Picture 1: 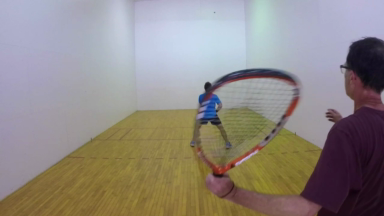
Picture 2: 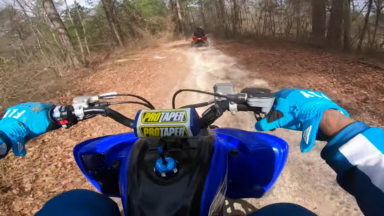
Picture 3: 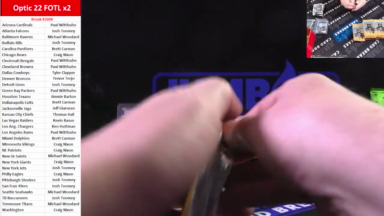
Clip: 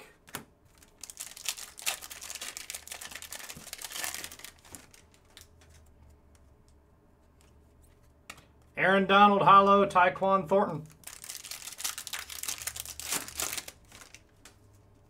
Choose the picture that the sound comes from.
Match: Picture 3